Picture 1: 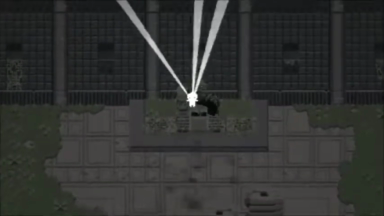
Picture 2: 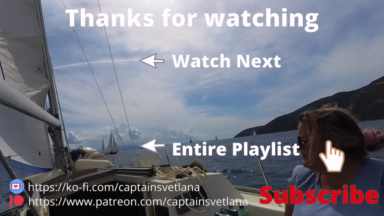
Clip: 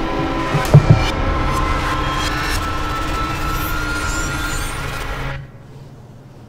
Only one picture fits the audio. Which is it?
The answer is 1